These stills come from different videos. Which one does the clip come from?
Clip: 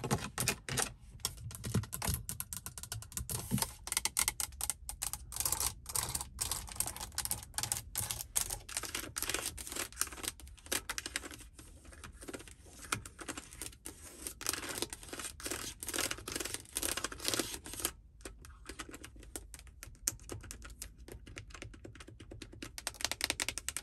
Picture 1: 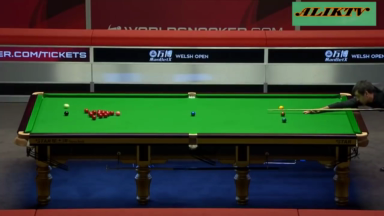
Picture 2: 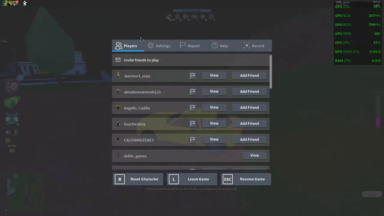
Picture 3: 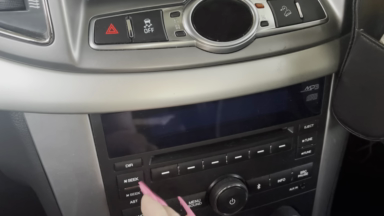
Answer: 3